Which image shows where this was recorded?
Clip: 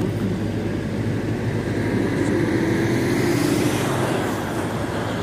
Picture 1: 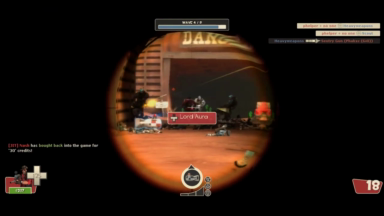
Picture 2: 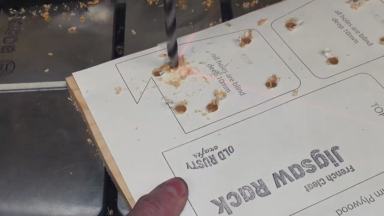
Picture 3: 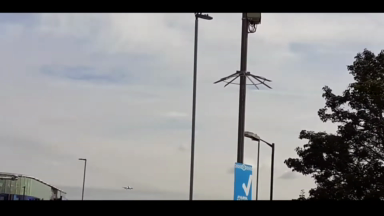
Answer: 3